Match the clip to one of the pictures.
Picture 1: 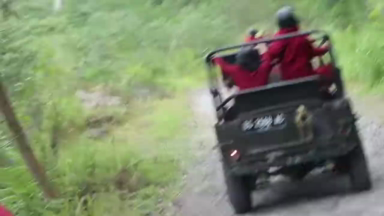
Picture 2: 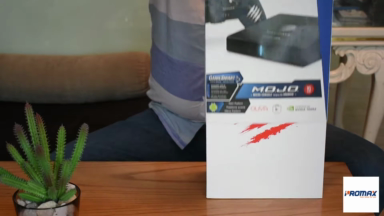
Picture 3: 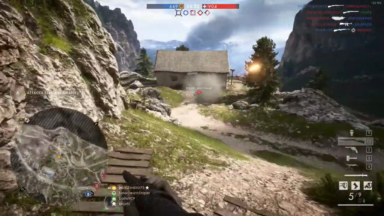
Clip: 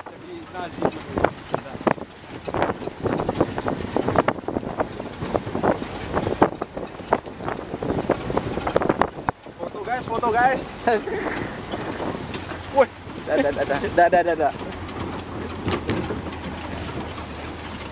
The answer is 1